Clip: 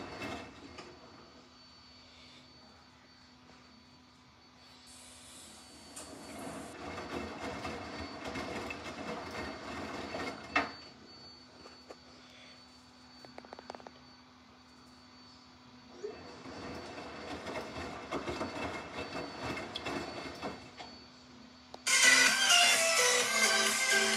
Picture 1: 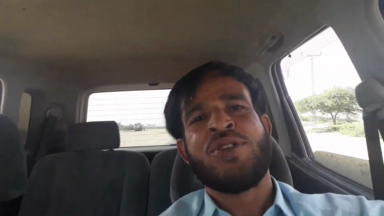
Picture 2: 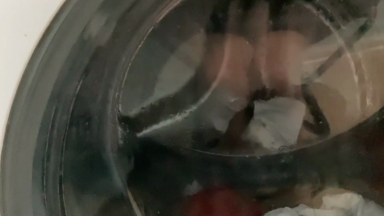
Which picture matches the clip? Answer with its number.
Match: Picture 2